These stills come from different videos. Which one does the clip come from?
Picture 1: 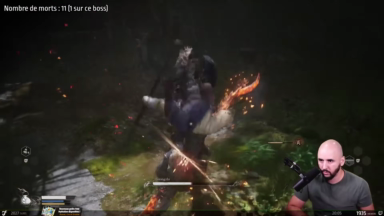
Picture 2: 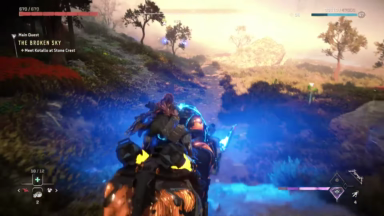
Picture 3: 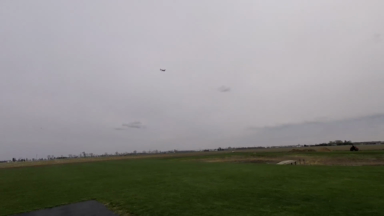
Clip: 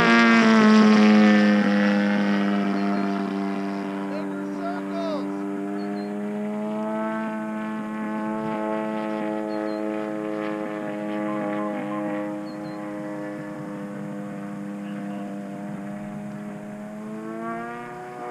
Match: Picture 3